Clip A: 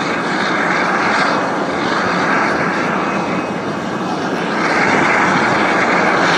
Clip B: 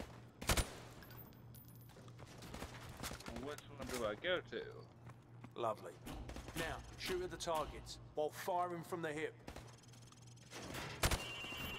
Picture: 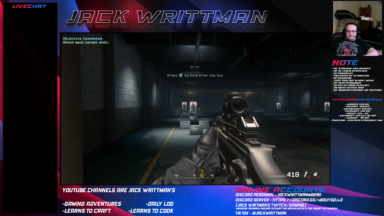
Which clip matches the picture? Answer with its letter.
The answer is B